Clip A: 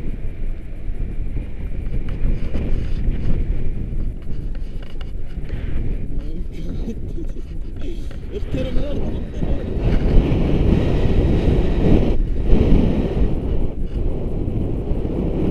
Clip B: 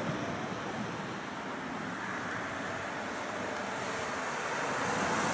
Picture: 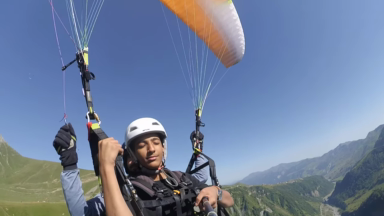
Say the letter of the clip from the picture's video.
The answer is A